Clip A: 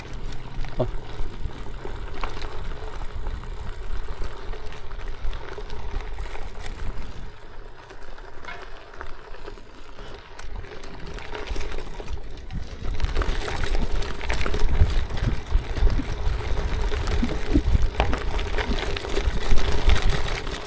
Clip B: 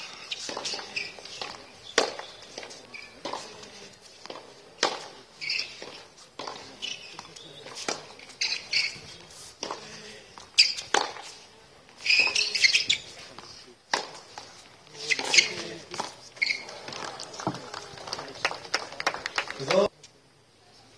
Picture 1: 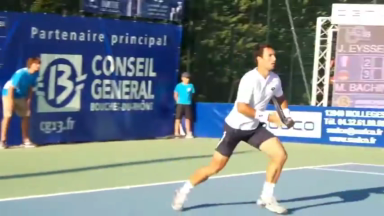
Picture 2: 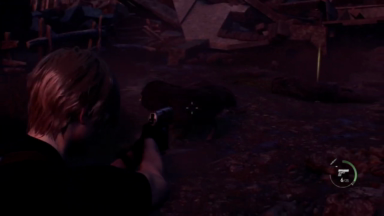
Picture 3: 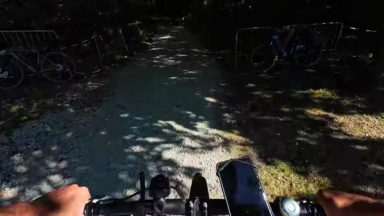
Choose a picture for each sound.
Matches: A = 3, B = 1